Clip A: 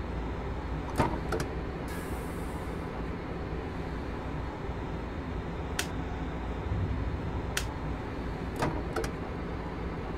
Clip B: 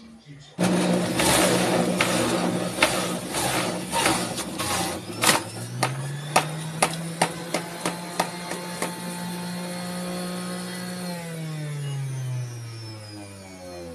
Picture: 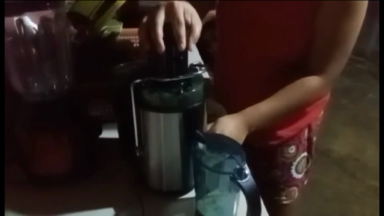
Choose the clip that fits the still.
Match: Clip B